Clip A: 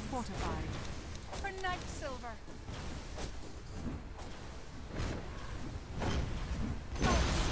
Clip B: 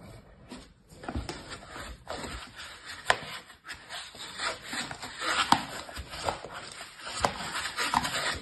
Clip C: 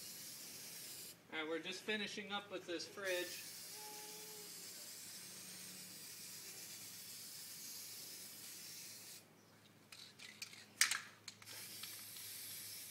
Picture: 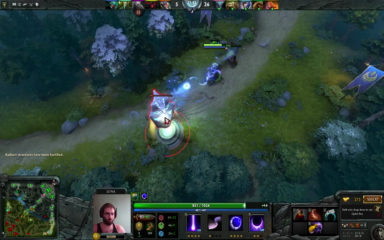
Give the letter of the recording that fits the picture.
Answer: A